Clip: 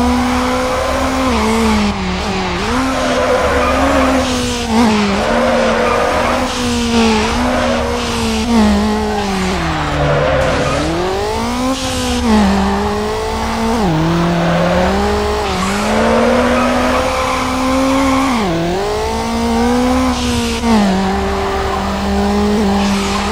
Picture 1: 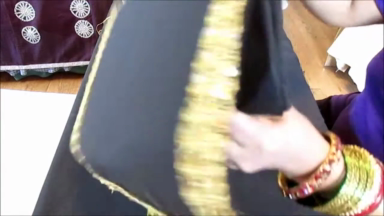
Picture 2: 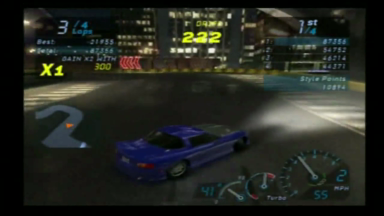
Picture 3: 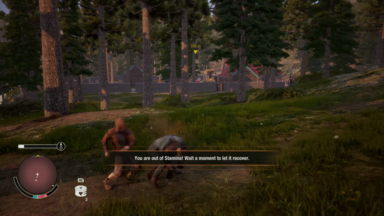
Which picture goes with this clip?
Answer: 2